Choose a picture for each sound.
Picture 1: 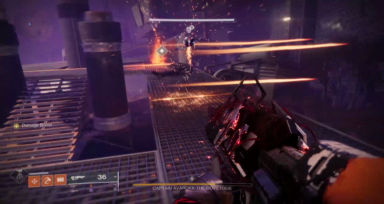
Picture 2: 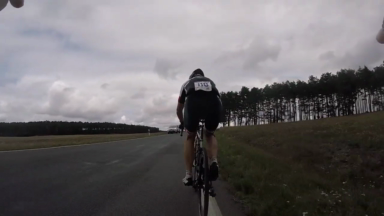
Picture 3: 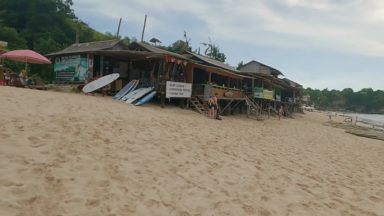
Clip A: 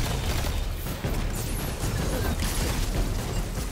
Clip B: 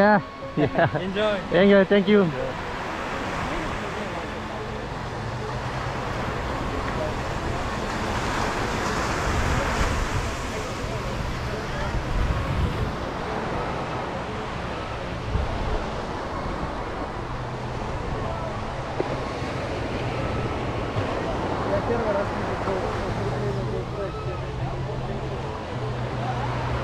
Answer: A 1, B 3